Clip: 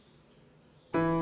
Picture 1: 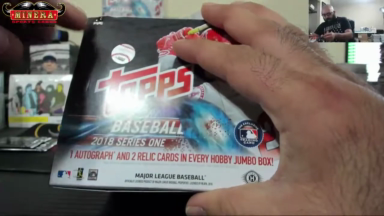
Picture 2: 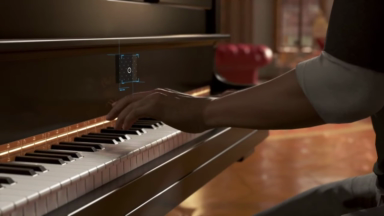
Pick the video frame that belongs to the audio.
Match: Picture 2